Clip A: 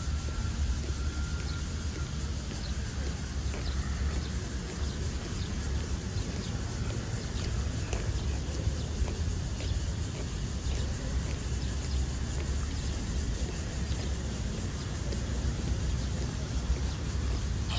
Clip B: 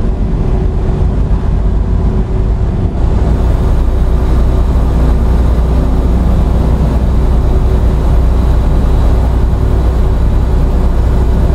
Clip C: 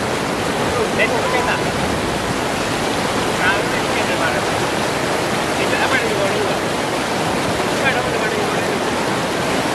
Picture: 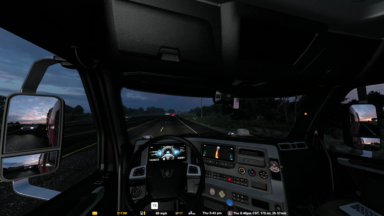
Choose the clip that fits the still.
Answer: B